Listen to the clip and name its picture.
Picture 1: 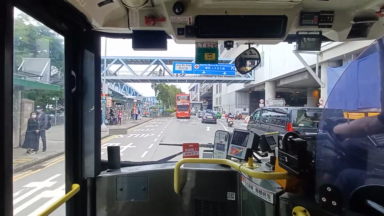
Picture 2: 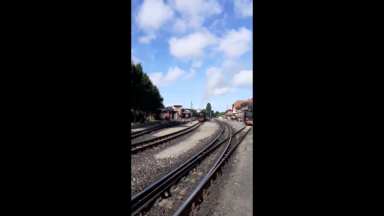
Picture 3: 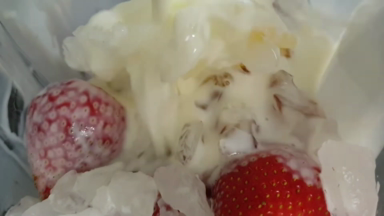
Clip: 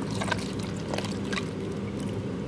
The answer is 3